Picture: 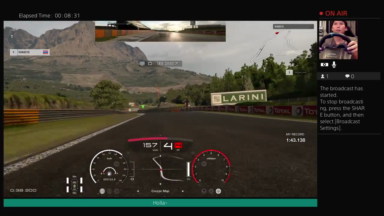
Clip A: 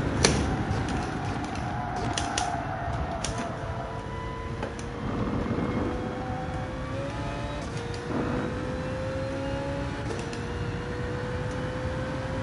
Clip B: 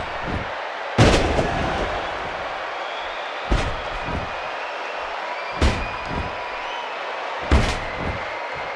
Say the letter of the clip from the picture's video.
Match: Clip A